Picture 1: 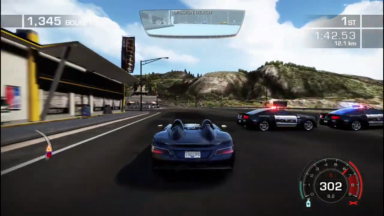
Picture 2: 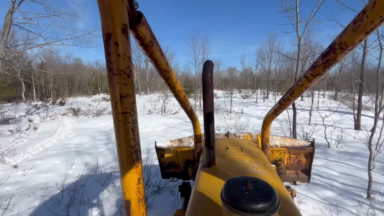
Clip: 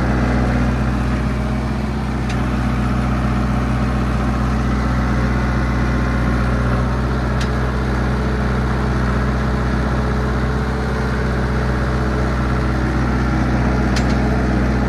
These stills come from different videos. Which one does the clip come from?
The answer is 2